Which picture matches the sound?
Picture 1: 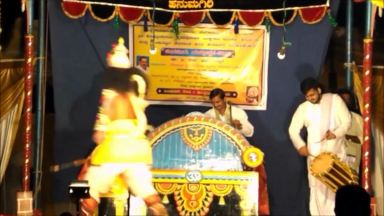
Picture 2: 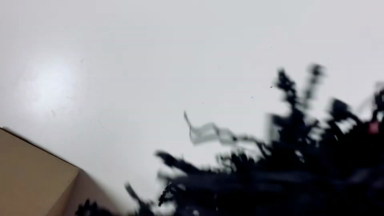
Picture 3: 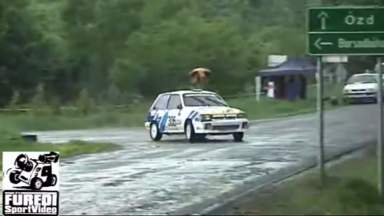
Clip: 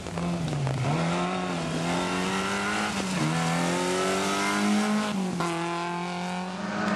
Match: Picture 3